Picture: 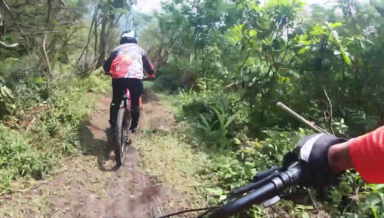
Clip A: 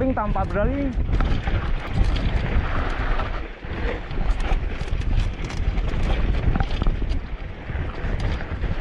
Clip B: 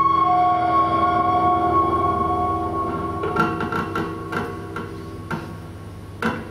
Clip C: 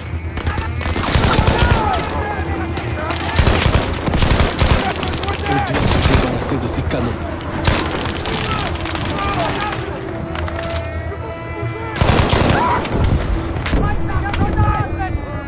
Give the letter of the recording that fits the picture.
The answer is A